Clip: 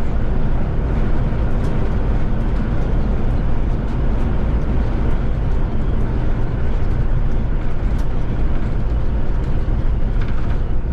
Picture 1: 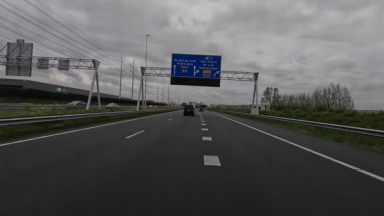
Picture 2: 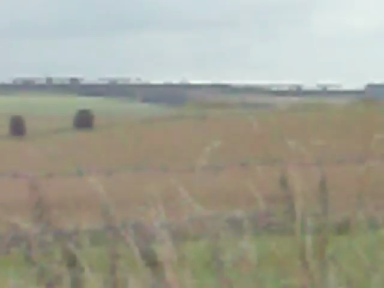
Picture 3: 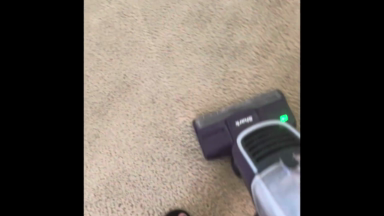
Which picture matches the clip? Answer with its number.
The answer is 1